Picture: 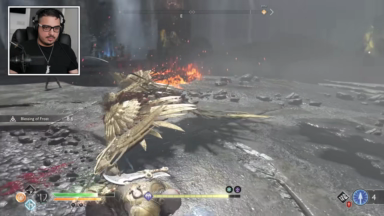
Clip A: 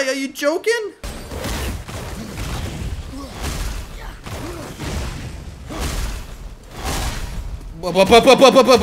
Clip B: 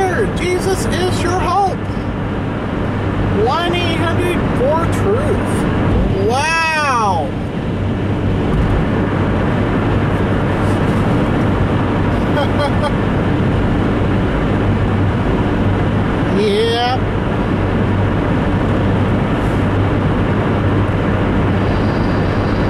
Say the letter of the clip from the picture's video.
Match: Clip A